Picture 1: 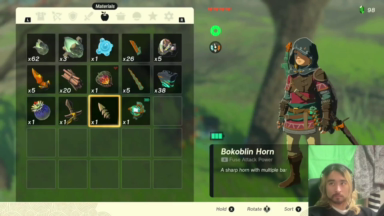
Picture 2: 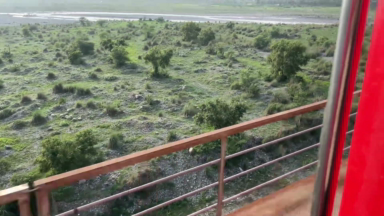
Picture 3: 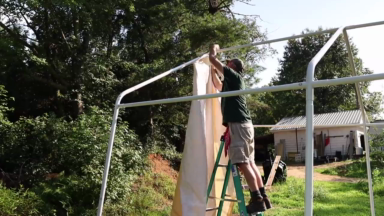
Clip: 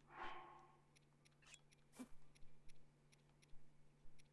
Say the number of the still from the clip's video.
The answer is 1